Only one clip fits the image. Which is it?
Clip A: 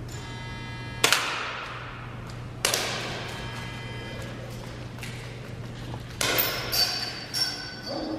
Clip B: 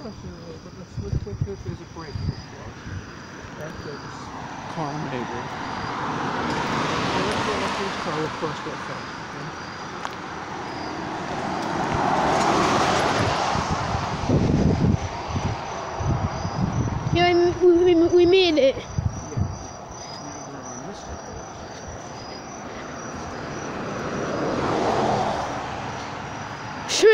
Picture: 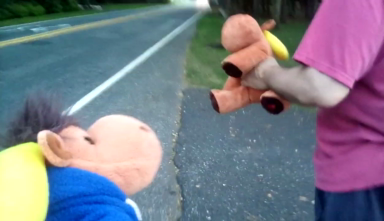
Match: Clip B